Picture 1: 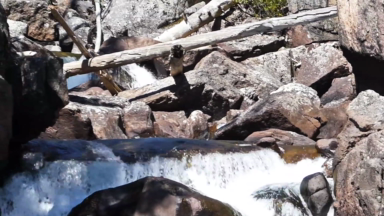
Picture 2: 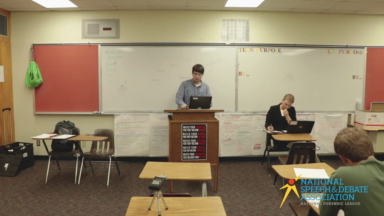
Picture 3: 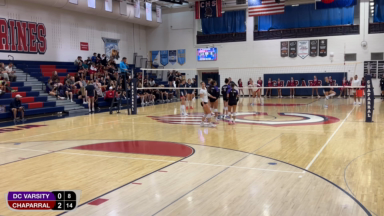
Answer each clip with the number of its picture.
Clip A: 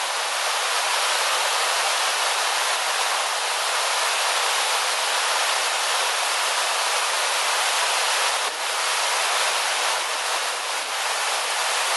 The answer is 1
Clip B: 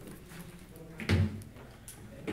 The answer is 2